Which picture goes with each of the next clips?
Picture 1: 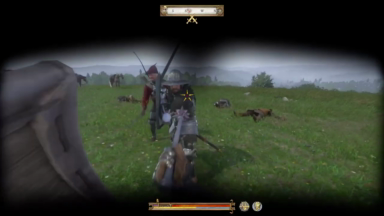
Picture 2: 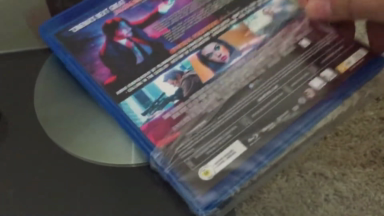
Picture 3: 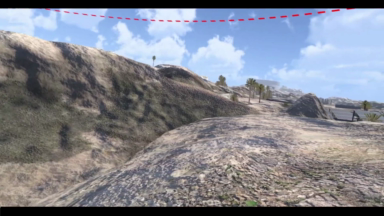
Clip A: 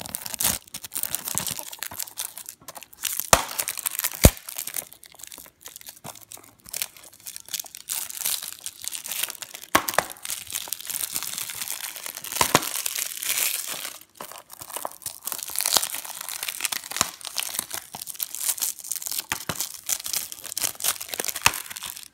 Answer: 2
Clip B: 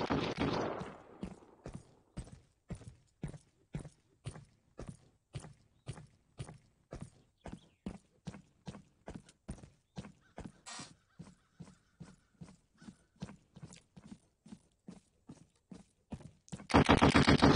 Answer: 3